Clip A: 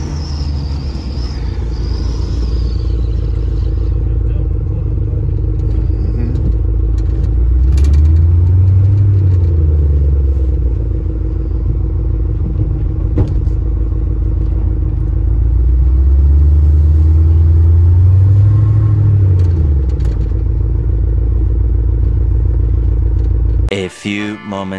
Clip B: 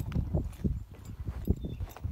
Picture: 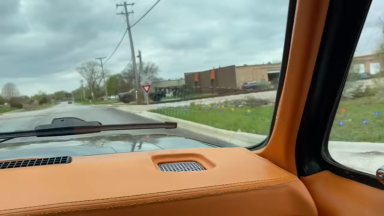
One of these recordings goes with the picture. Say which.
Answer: A